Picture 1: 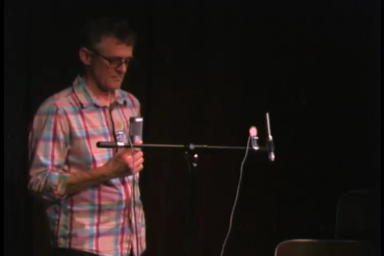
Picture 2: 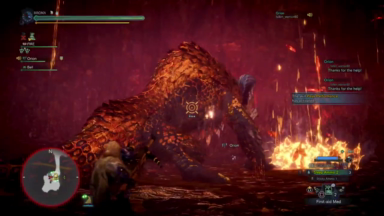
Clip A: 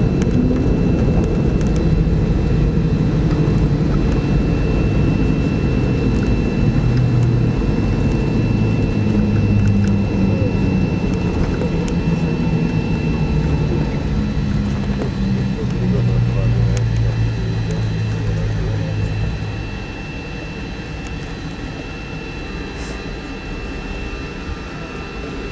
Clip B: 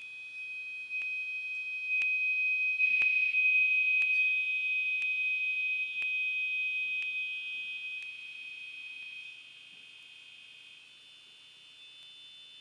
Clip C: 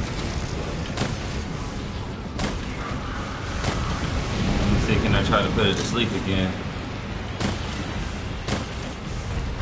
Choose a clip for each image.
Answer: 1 B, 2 C